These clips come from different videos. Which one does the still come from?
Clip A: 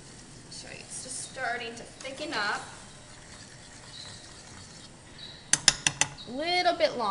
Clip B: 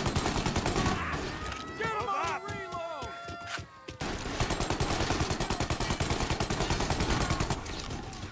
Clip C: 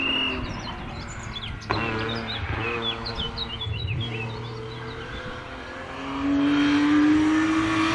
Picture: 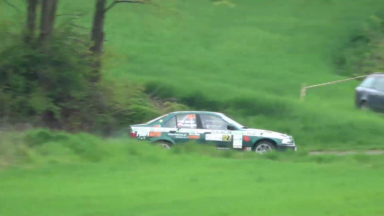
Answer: C